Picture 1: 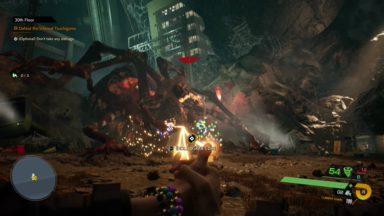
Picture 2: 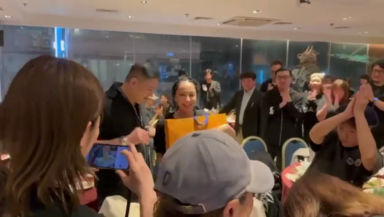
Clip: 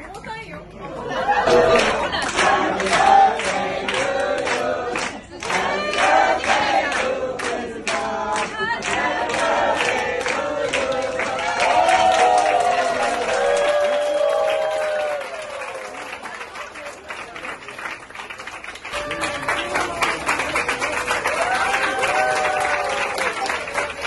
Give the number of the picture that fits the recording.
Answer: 2